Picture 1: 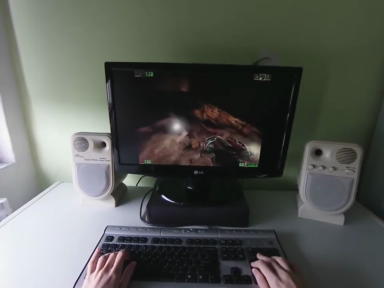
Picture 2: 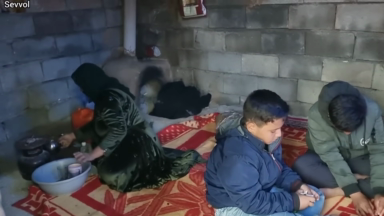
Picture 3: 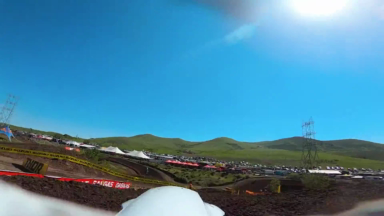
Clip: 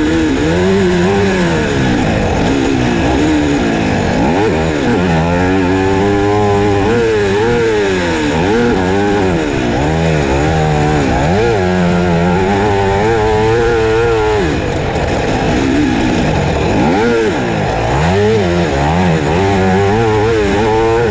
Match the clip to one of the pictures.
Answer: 3